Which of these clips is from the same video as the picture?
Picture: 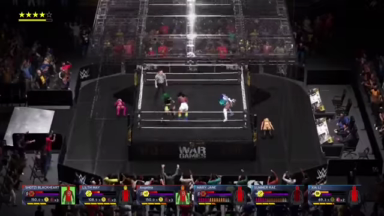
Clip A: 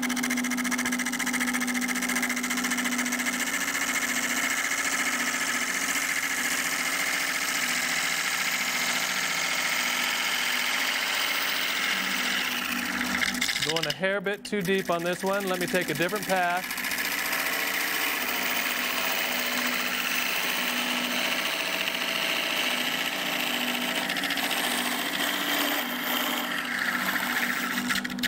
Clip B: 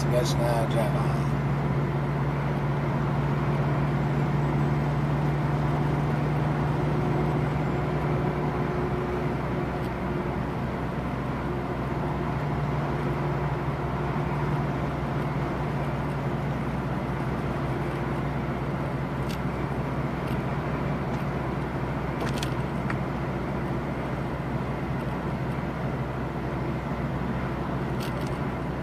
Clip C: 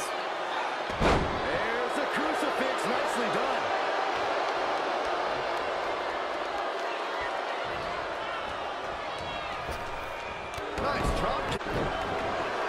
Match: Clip C